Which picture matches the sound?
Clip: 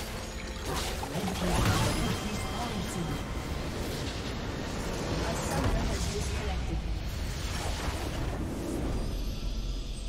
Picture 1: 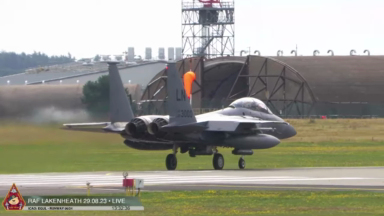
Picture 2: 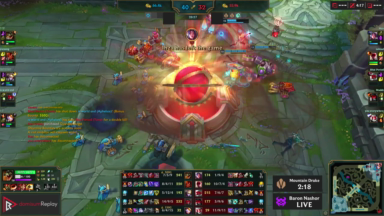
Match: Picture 2